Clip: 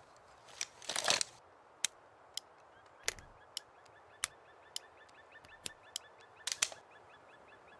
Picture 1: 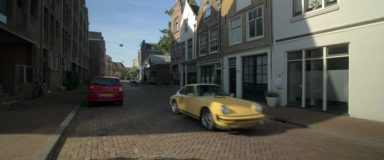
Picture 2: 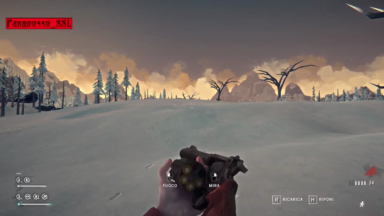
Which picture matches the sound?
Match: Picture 2